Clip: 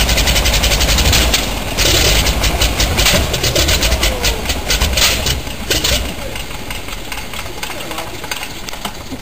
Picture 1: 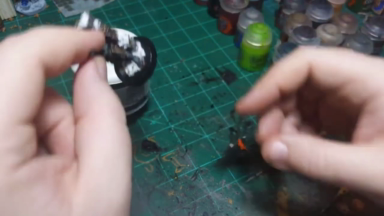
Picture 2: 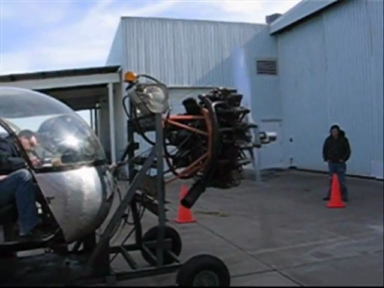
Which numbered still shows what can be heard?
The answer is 2